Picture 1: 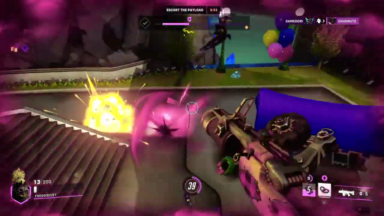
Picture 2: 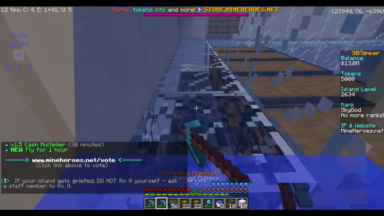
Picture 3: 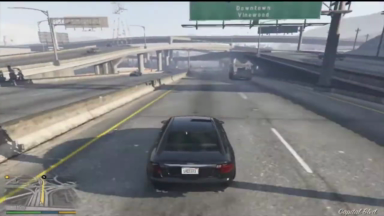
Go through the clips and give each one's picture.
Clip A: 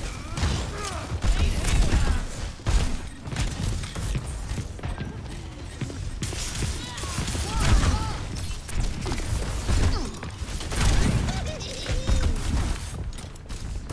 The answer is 1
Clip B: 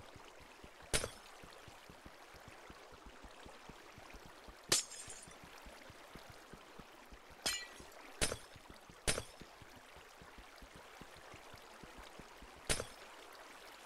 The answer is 2